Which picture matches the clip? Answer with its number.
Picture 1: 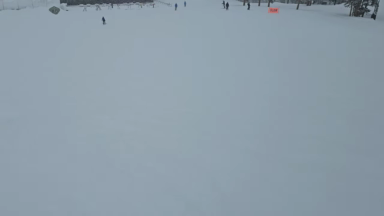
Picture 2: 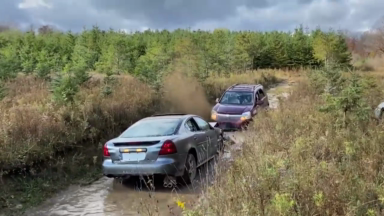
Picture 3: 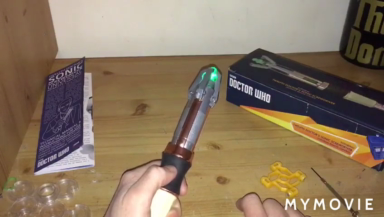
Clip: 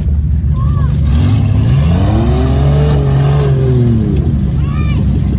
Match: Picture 2